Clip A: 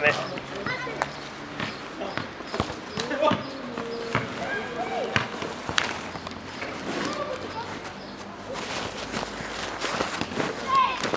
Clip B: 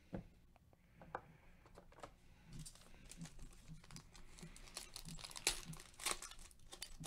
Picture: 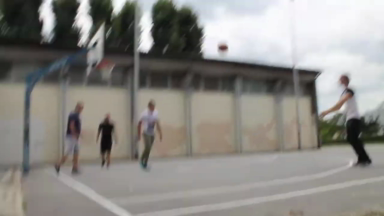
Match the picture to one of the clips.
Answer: A